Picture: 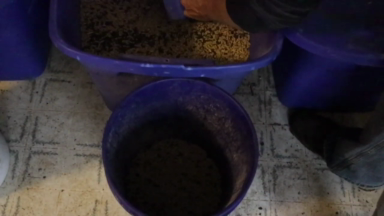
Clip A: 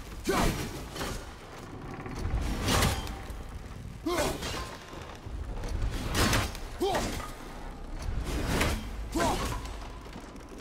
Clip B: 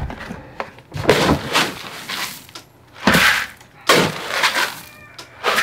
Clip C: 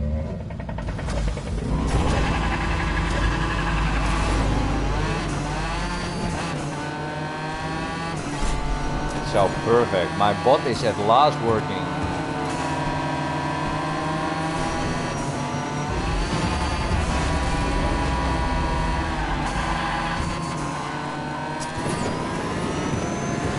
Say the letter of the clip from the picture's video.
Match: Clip B